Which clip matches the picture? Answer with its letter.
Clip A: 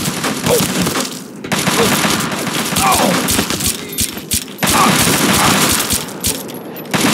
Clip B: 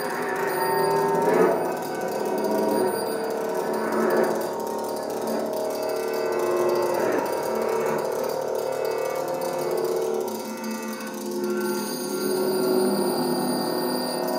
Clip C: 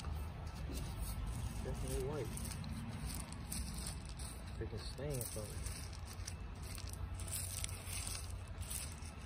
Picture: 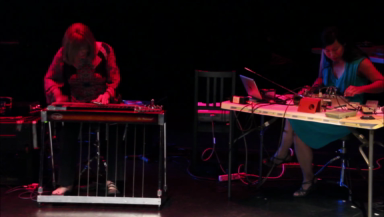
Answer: B